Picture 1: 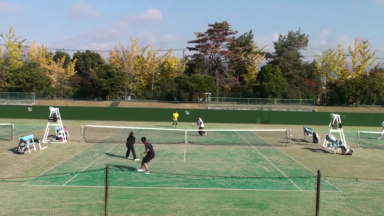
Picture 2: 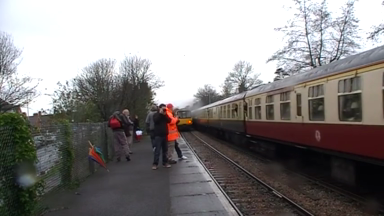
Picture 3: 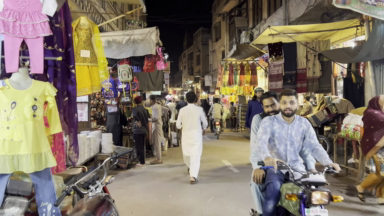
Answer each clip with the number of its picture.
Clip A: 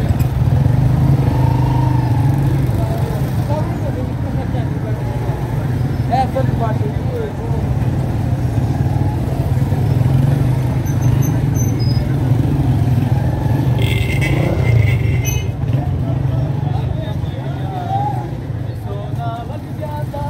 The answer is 3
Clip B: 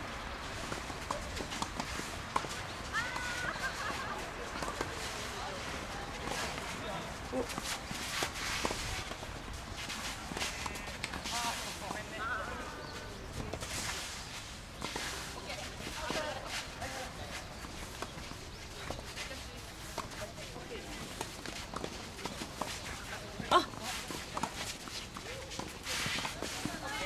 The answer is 1